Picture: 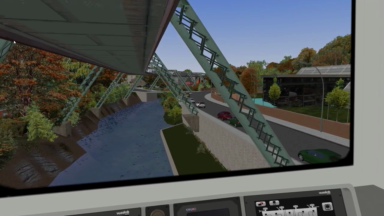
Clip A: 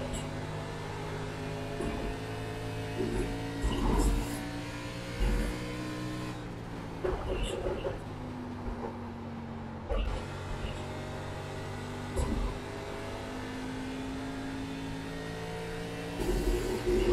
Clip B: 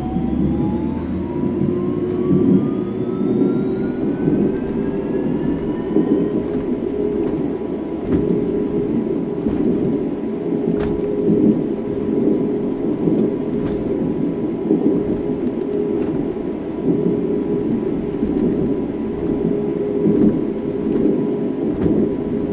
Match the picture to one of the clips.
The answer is B